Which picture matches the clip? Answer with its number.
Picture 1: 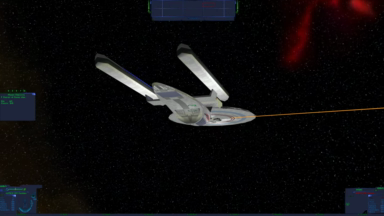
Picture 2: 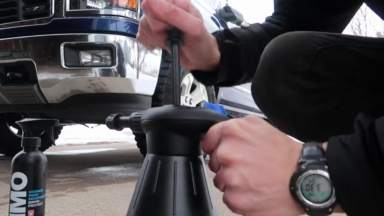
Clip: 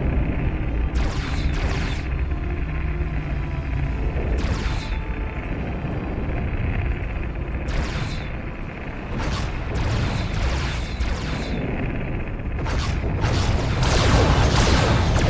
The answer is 1